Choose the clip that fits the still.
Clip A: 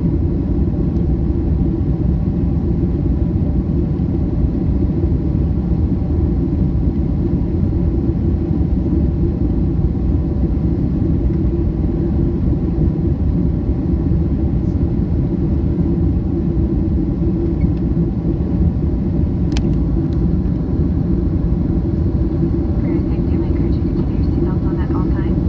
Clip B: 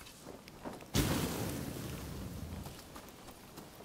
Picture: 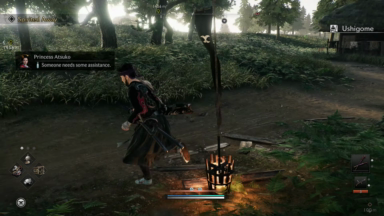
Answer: B